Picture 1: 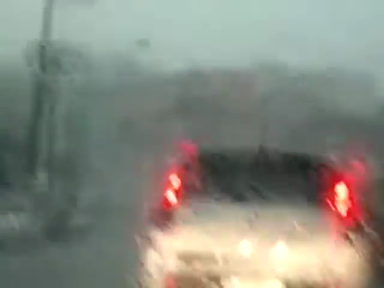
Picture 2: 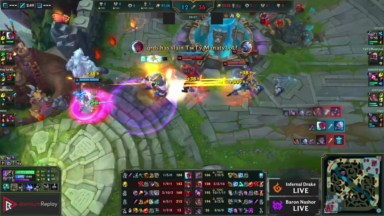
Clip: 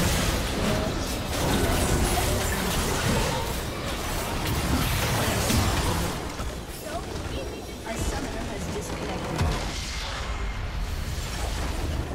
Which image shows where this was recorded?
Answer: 2